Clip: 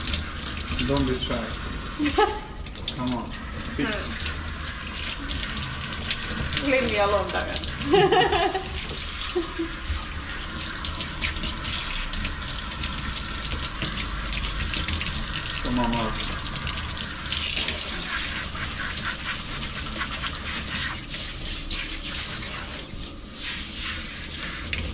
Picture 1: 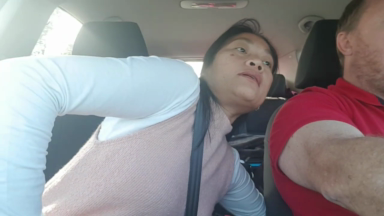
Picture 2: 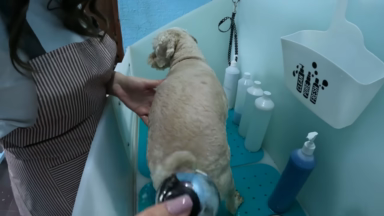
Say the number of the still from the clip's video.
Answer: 2